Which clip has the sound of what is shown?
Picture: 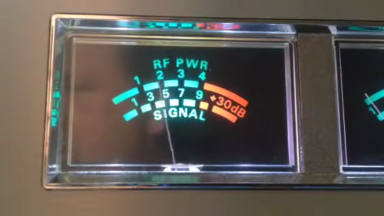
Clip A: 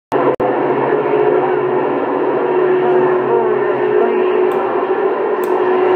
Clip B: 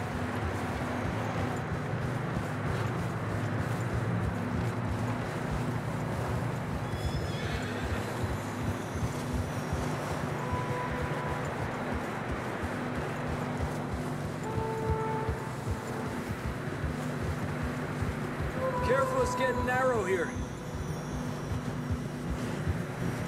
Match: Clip A